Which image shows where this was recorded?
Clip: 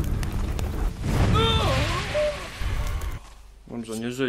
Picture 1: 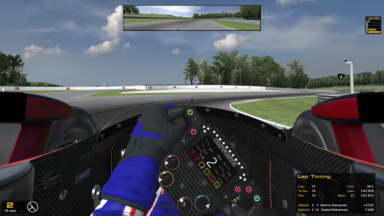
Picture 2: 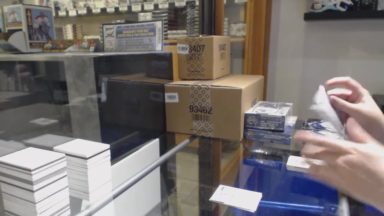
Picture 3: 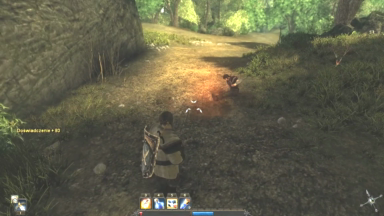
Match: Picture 3